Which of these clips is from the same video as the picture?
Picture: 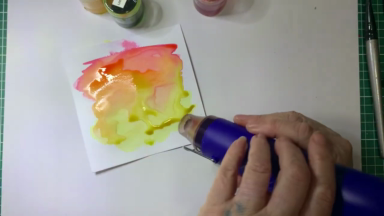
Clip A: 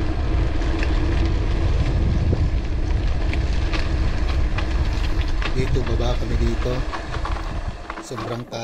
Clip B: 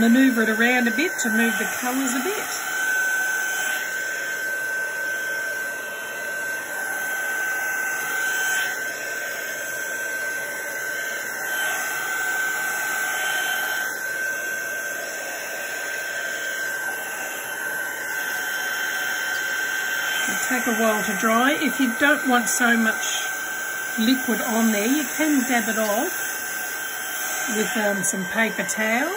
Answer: B